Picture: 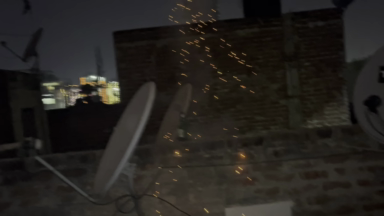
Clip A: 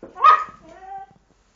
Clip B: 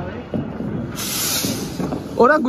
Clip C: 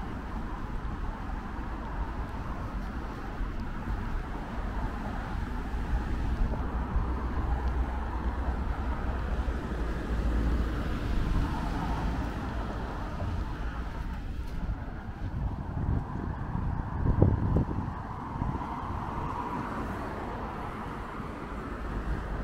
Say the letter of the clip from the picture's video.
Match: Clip B